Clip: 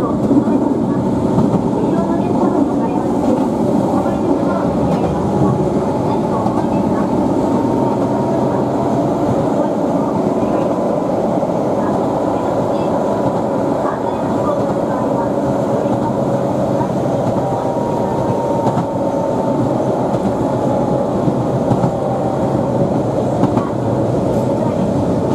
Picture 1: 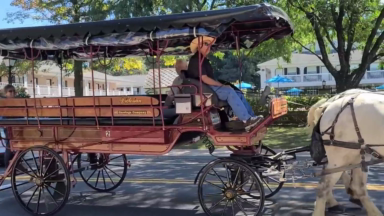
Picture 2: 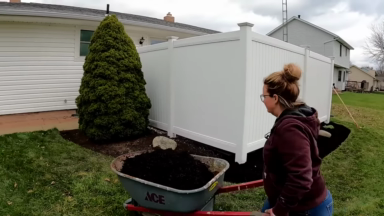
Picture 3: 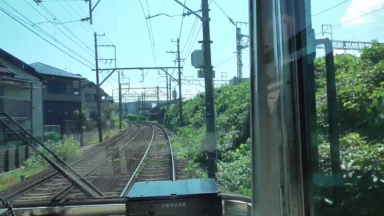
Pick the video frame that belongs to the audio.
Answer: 3